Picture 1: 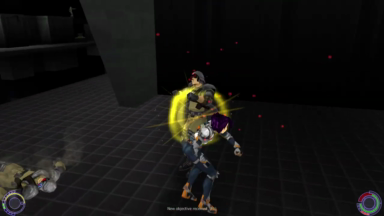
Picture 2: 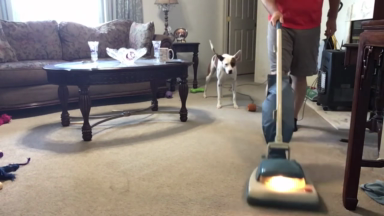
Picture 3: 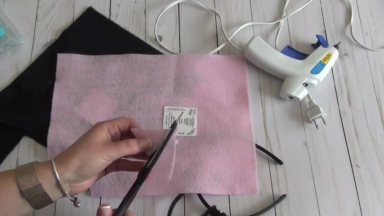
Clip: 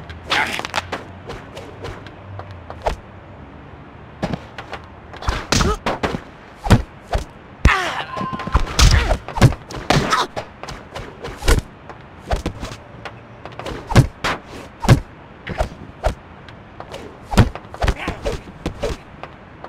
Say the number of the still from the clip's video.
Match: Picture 1